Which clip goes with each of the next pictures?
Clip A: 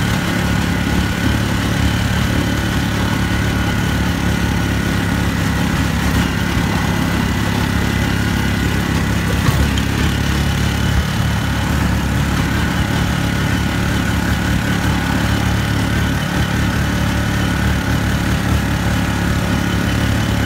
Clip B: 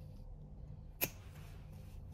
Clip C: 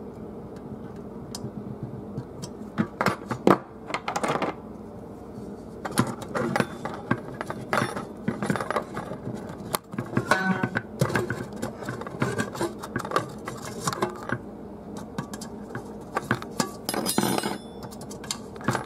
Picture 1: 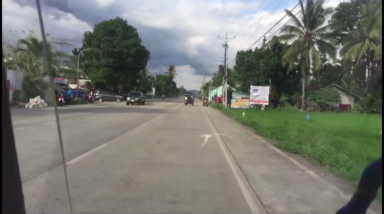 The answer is A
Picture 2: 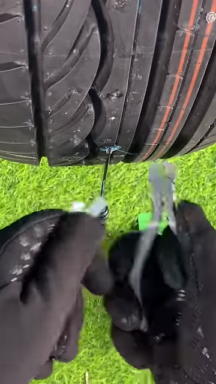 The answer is B